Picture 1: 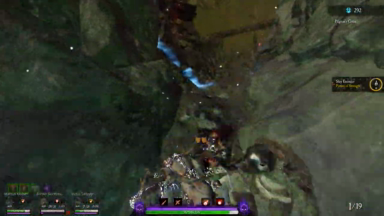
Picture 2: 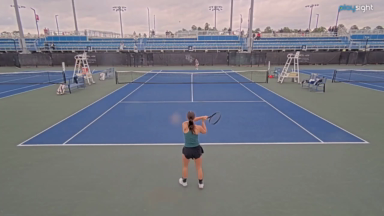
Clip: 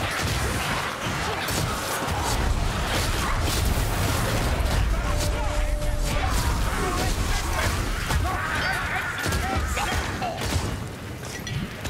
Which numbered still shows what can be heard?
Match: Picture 1